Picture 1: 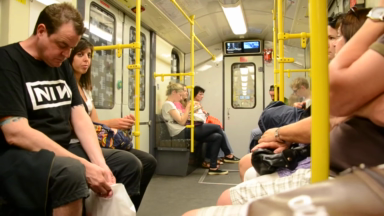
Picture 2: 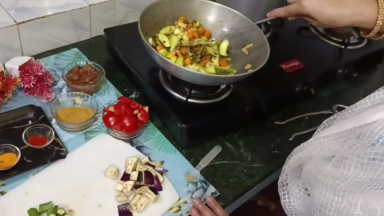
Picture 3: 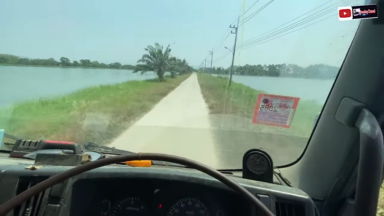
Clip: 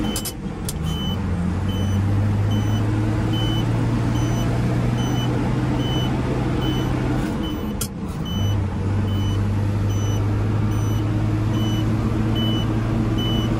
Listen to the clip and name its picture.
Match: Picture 3